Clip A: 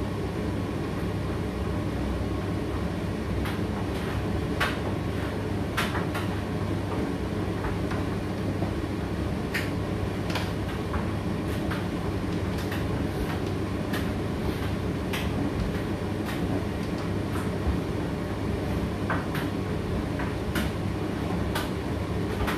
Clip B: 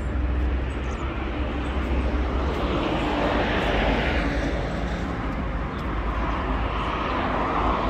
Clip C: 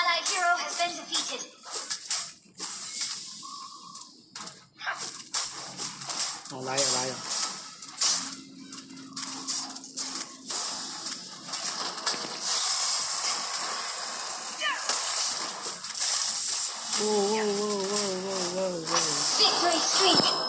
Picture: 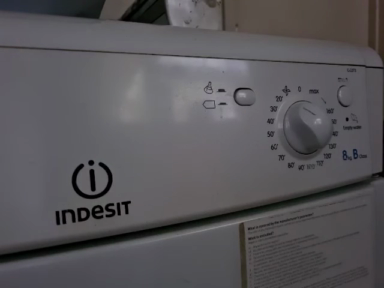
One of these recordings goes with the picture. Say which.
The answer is A